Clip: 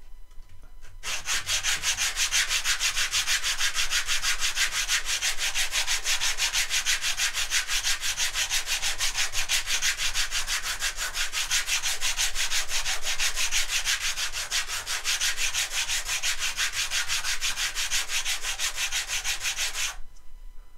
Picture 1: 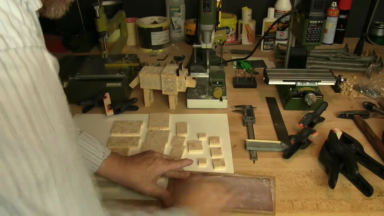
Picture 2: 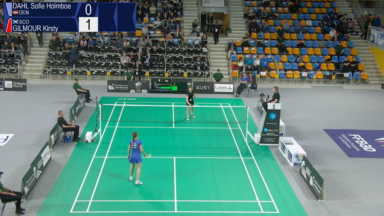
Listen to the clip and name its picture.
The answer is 1